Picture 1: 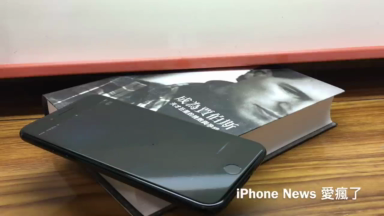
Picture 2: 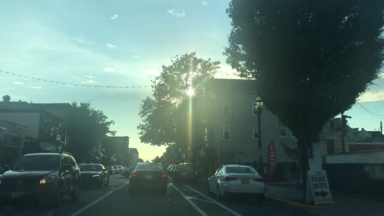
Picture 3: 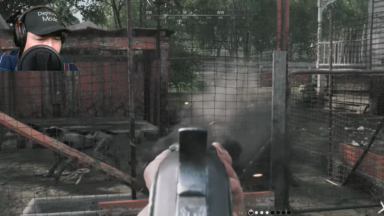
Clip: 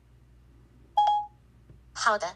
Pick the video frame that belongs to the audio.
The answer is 1